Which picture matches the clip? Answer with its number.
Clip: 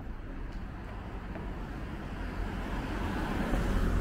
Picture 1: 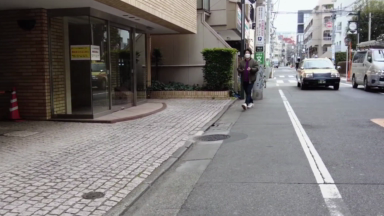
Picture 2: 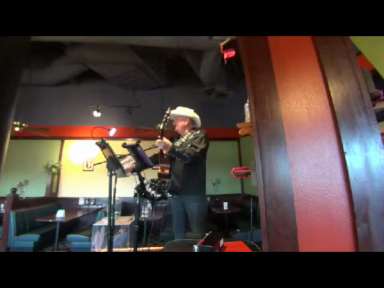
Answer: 1